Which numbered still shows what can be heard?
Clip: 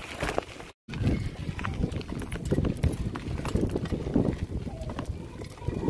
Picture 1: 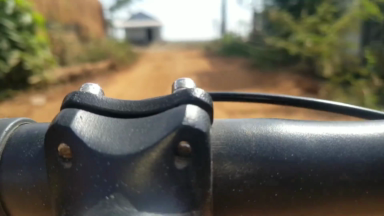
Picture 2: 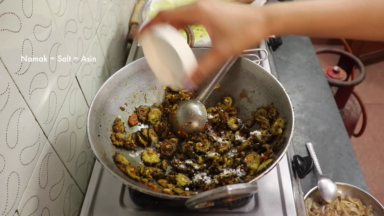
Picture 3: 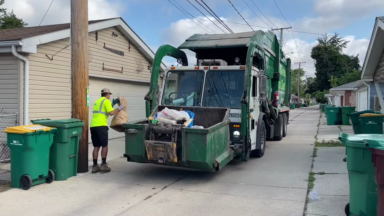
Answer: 1